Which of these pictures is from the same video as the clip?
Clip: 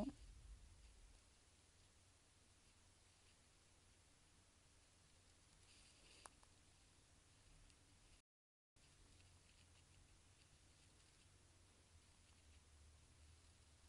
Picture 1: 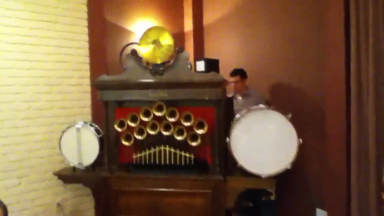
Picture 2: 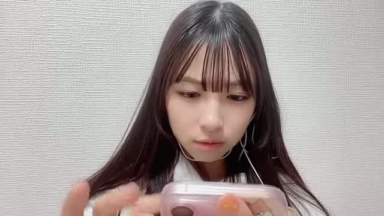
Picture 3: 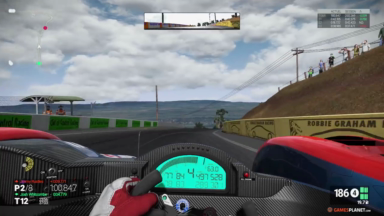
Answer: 2